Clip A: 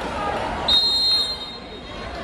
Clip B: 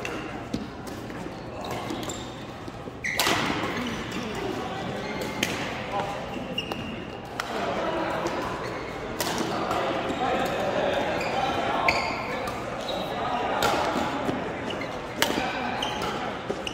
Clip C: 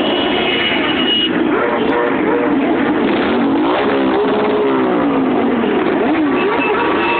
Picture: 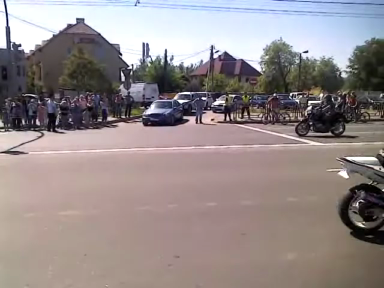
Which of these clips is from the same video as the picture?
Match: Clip C